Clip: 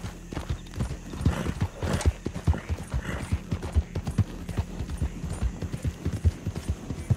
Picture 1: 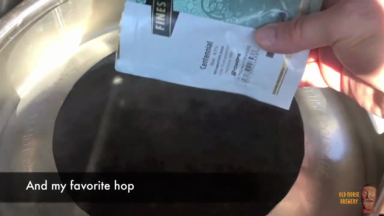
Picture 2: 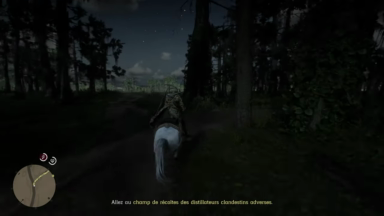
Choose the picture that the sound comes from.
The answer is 2